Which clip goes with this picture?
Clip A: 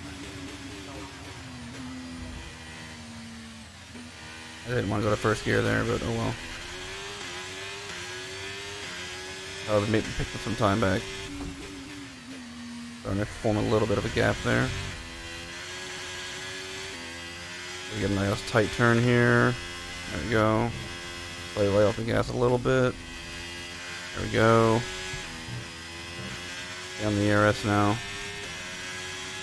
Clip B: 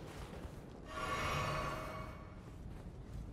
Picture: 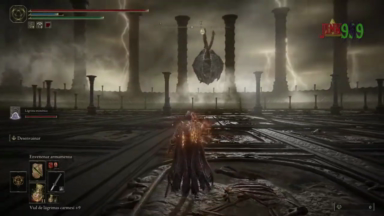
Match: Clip B